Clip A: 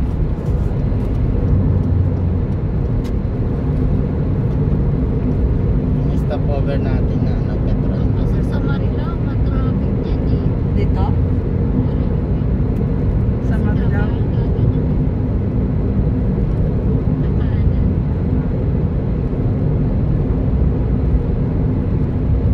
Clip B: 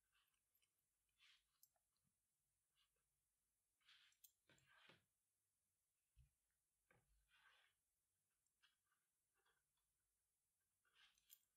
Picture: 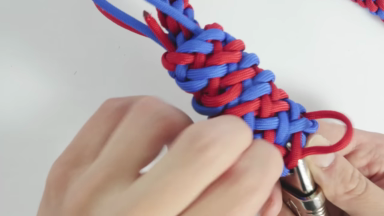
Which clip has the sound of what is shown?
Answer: B